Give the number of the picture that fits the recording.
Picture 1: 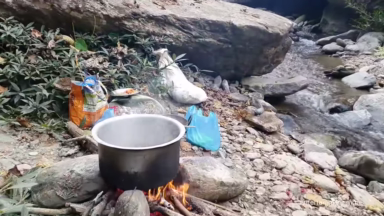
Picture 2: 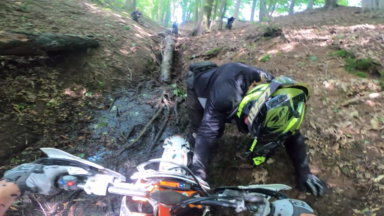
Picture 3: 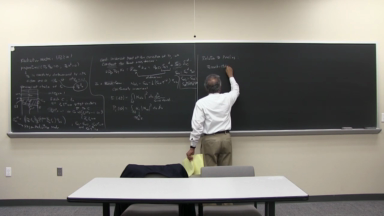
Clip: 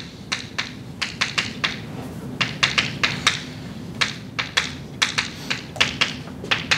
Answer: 3